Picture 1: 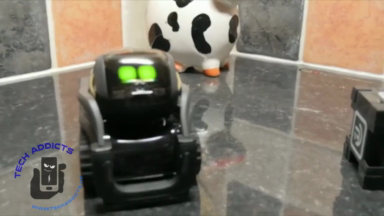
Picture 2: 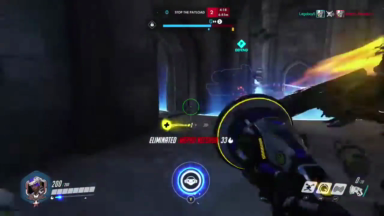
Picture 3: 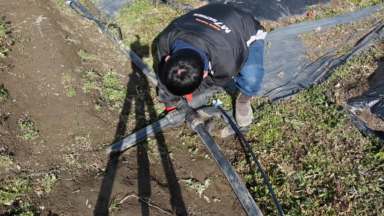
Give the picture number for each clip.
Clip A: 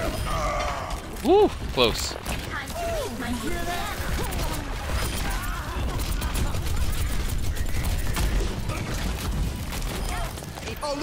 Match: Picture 2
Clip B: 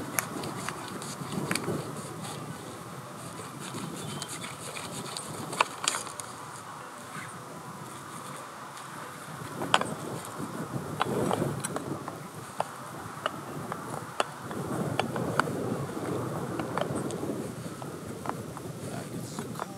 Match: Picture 3